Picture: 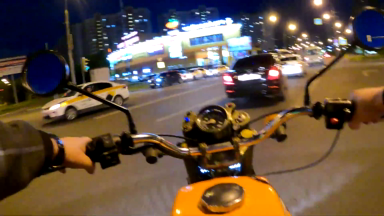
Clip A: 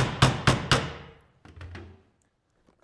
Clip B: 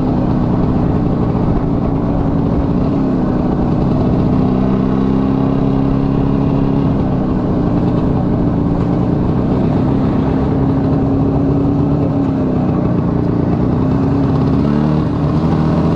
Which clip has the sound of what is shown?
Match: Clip B